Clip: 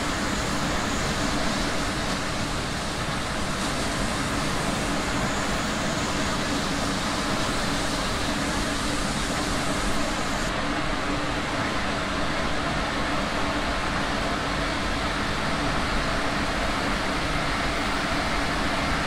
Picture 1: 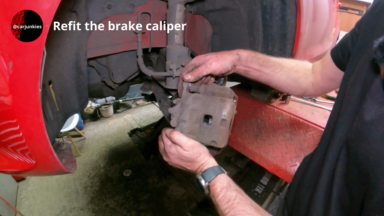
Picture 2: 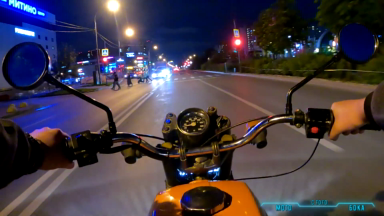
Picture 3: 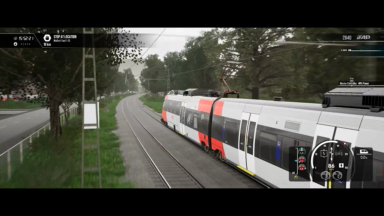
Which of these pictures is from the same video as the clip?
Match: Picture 3